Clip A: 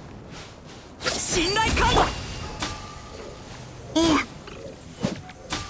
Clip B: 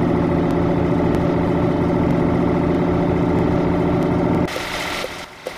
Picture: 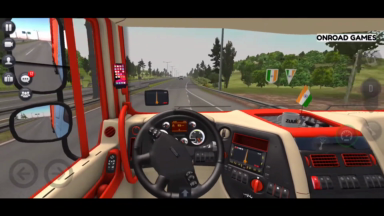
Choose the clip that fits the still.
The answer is B